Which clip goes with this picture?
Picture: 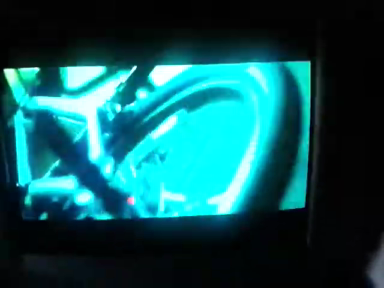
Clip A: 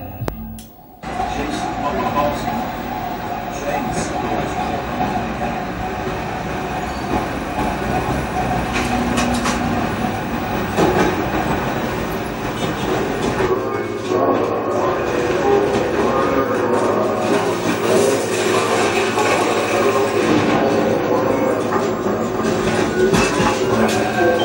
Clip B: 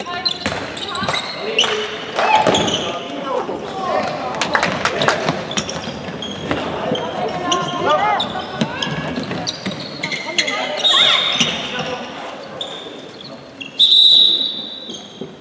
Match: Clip A